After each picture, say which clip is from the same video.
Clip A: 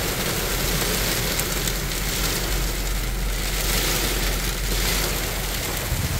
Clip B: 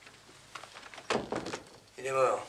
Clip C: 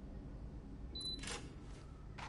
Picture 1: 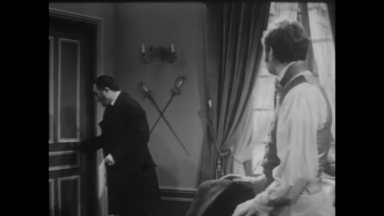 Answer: B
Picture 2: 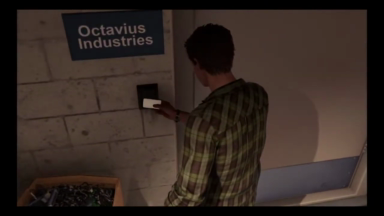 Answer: C